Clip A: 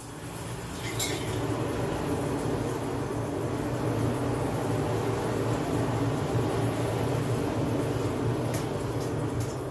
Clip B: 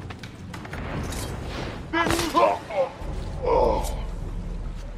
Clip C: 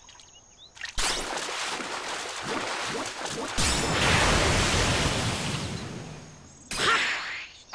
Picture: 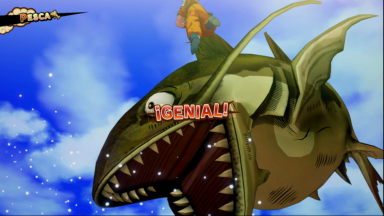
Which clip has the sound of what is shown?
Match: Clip C